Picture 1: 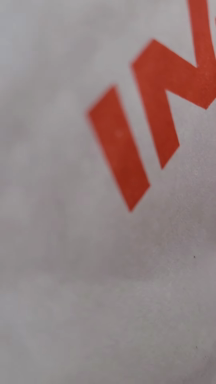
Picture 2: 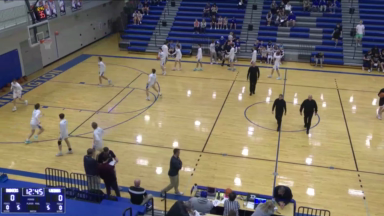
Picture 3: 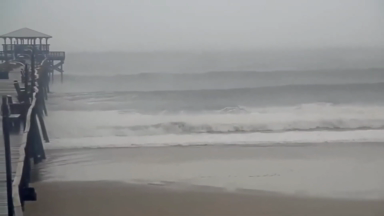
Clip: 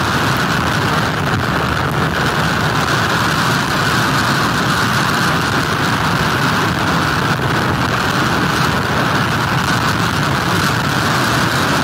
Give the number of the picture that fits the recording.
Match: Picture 3